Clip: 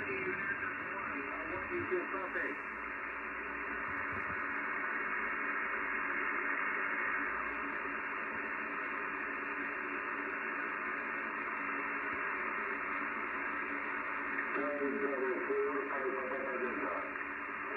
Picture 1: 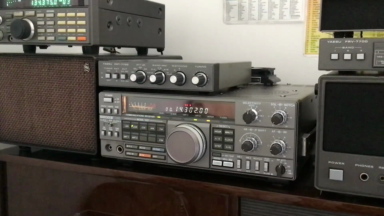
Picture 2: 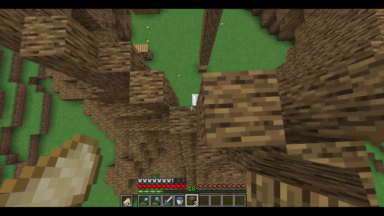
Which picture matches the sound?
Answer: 1